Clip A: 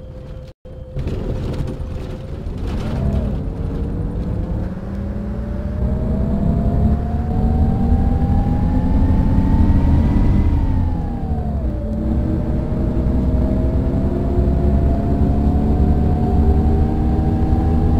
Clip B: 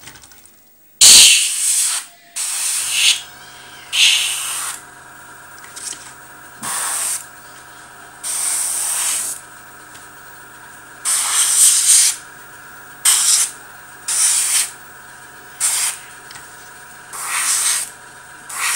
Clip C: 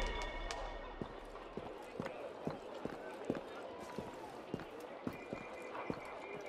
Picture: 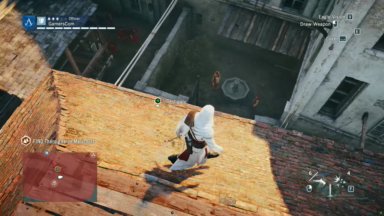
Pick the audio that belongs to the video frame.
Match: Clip C